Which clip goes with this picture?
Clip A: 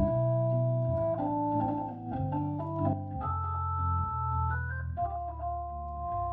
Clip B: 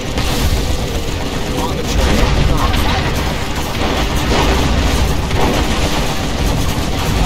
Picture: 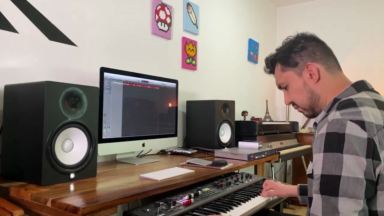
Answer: A